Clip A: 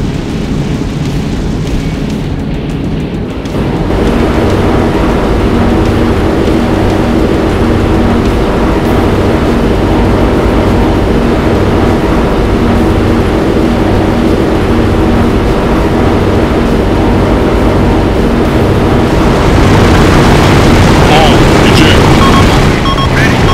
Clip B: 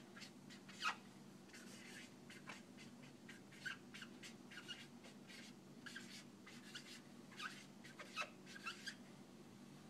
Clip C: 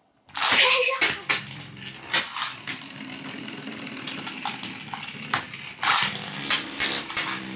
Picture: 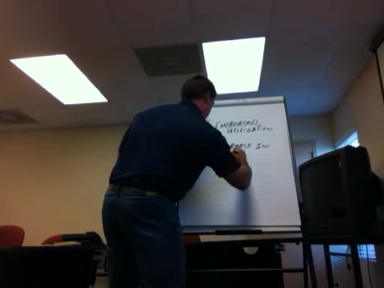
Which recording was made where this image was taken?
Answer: B